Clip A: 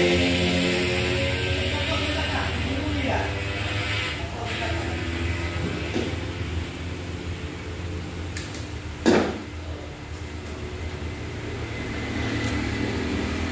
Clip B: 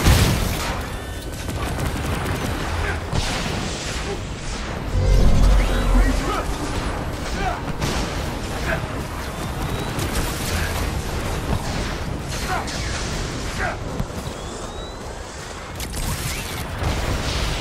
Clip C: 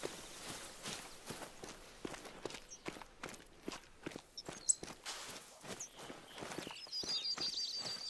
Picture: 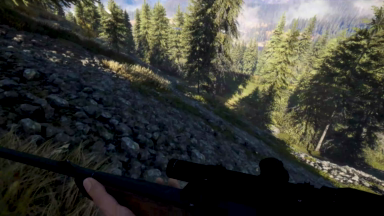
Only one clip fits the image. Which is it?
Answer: C